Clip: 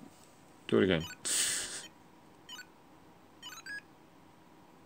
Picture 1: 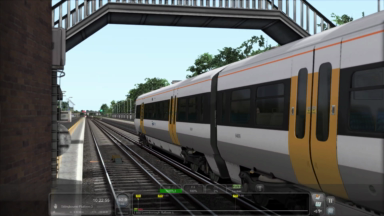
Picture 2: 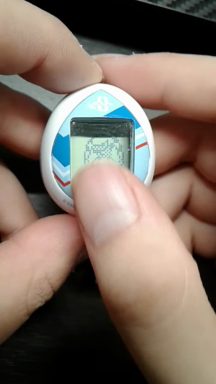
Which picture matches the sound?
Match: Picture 2